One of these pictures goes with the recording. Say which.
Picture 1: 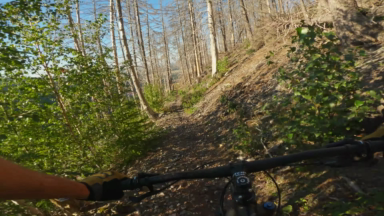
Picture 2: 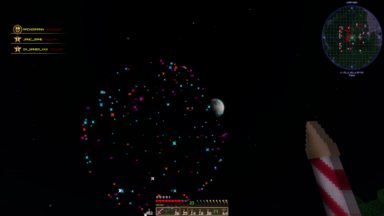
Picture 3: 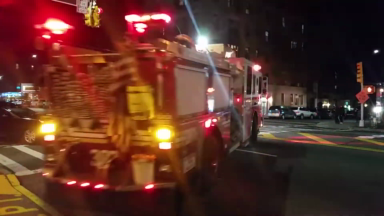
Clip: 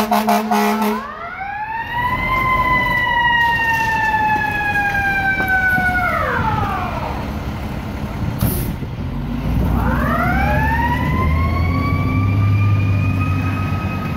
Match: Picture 3